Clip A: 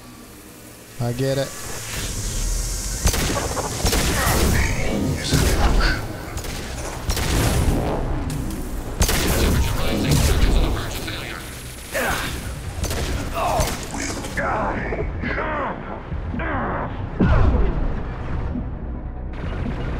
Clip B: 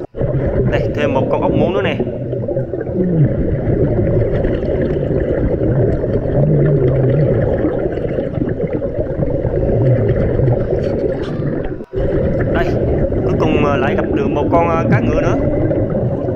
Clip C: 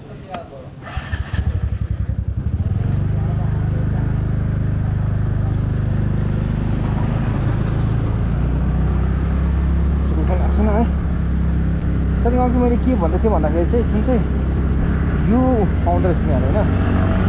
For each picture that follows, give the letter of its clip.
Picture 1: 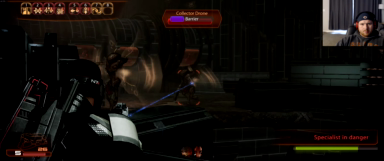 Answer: A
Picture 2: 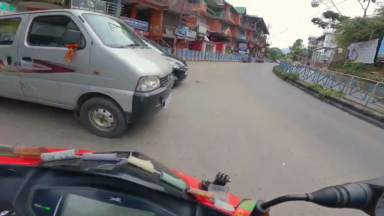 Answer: C